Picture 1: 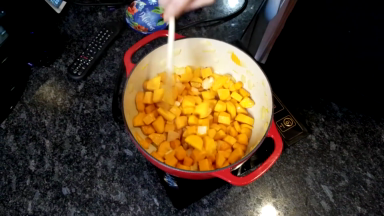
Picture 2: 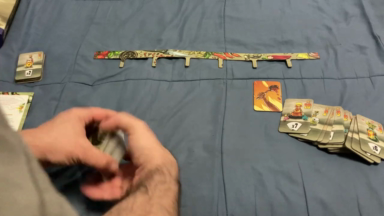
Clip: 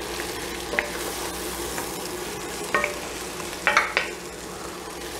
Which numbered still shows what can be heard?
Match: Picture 1